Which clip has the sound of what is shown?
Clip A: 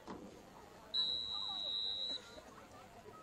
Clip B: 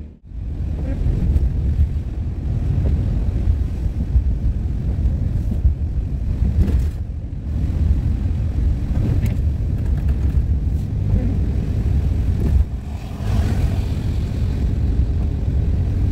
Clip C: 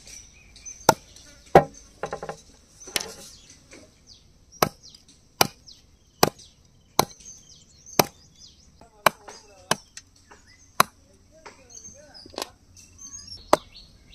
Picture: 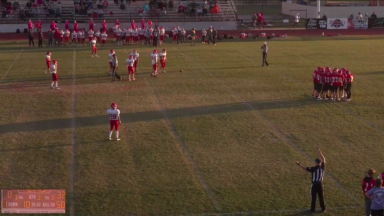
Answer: A